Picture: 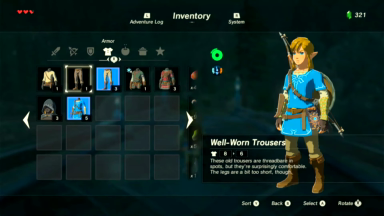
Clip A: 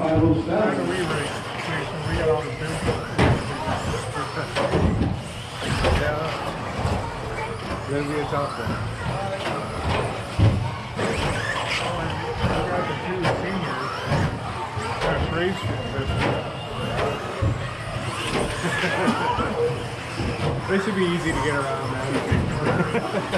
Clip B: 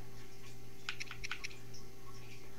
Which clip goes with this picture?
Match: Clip B